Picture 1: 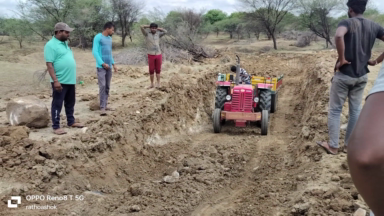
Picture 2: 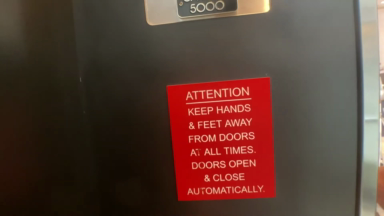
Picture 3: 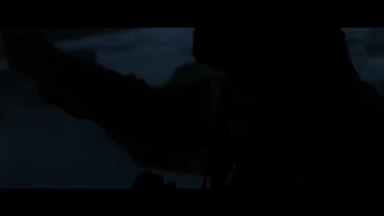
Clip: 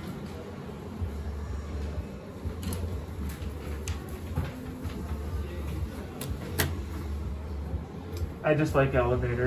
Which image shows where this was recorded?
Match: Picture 2